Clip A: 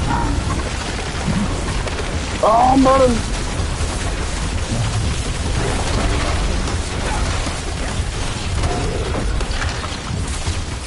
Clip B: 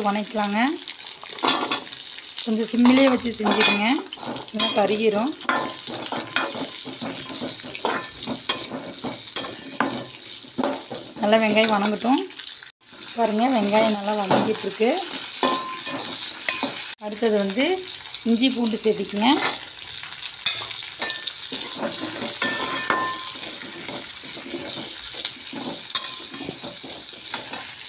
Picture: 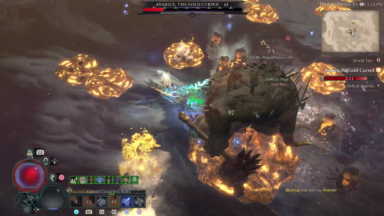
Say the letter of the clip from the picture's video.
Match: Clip A